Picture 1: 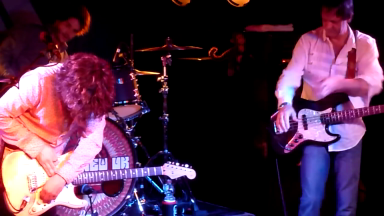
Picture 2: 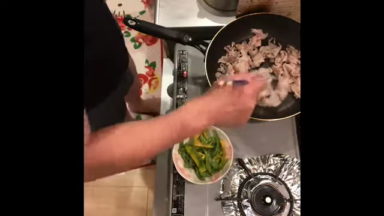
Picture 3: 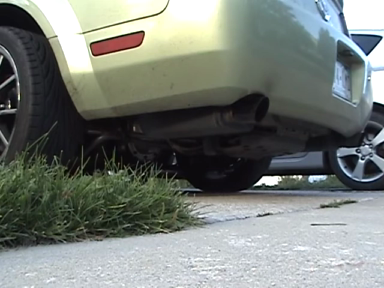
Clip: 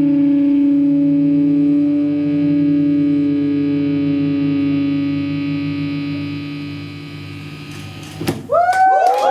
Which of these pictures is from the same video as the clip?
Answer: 1